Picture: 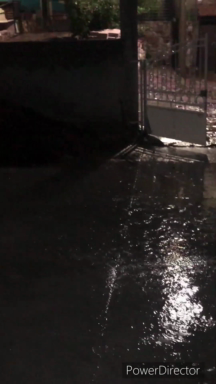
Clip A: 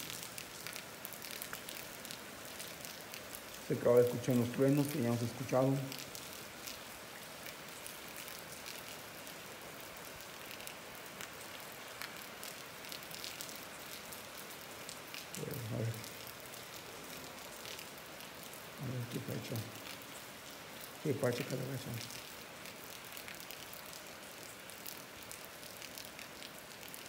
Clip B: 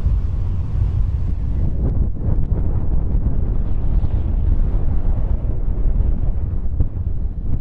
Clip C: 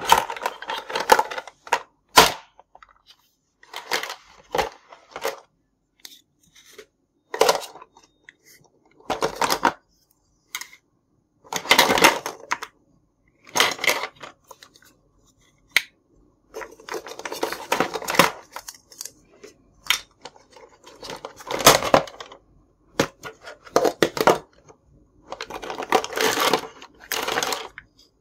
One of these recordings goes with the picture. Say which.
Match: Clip A